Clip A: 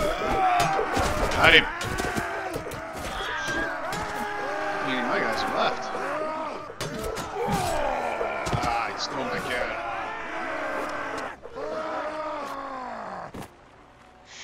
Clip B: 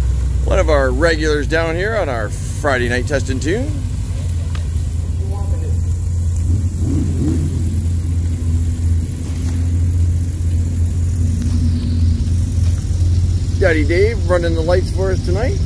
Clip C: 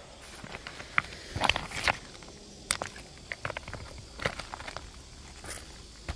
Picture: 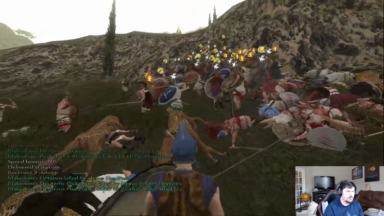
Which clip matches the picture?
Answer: A